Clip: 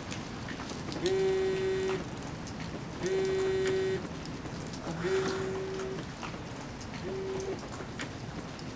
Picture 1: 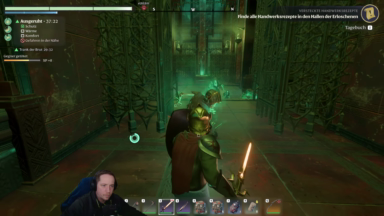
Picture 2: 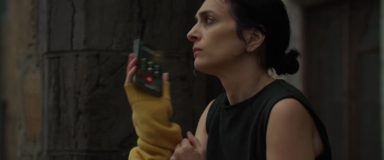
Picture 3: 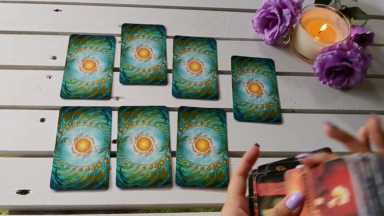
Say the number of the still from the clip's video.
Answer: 2